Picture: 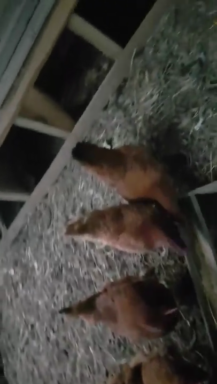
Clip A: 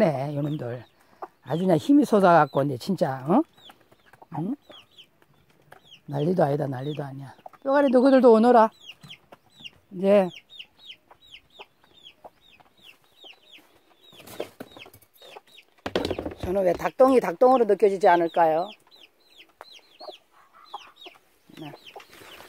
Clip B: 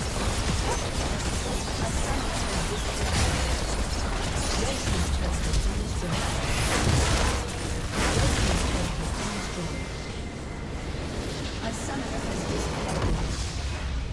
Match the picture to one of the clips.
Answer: A